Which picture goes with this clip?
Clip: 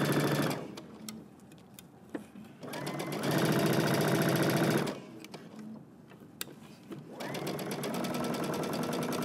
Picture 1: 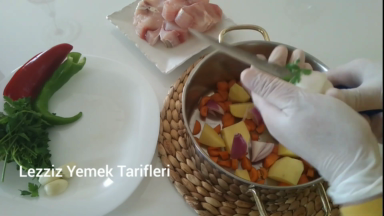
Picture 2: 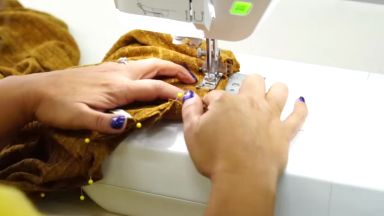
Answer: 2